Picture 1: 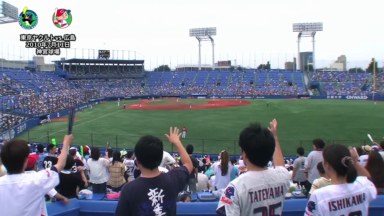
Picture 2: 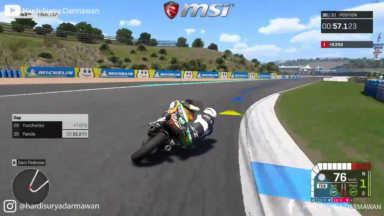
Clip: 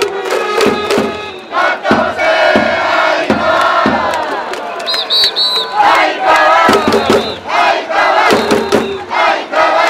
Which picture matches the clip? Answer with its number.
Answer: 1